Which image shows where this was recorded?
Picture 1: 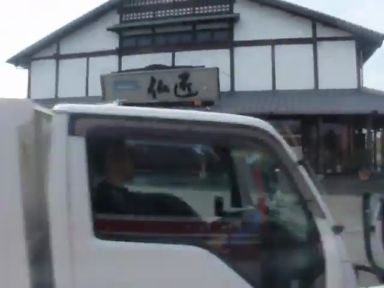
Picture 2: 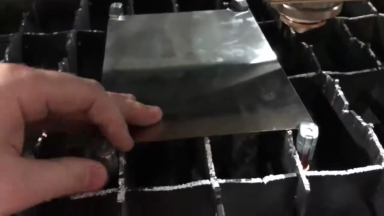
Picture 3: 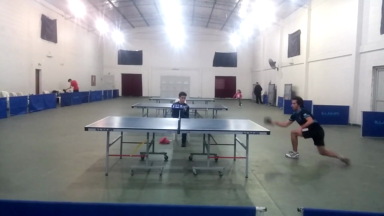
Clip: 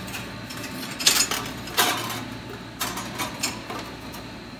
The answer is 2